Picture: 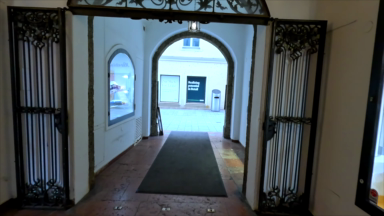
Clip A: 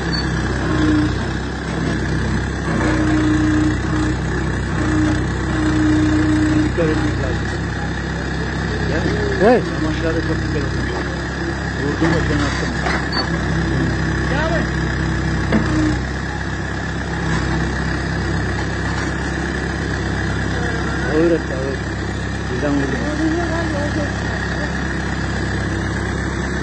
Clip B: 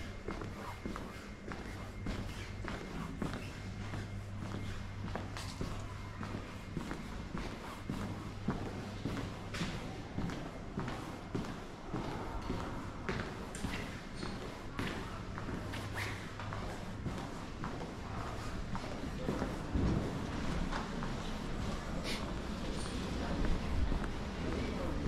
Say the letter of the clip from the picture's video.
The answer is B